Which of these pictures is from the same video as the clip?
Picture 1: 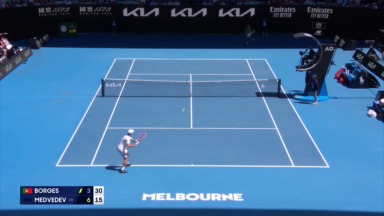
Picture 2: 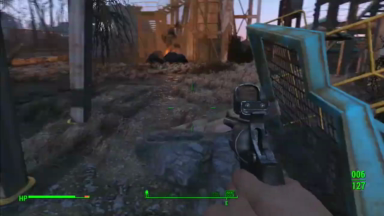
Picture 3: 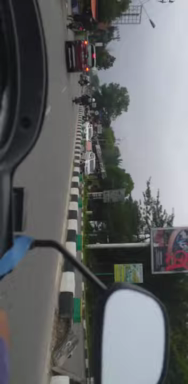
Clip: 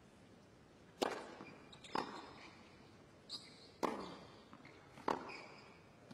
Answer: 1